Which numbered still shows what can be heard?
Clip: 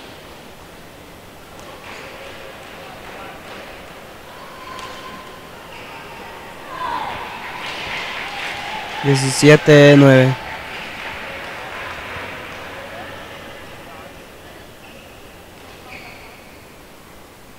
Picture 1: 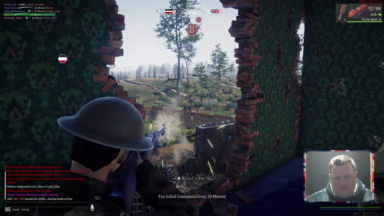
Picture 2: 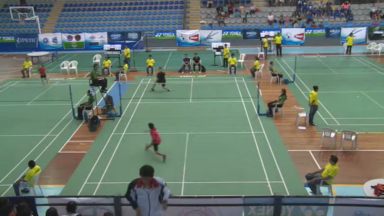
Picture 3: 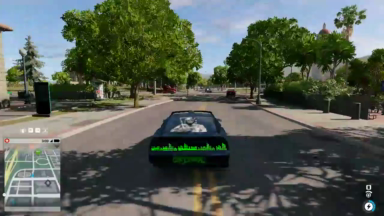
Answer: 2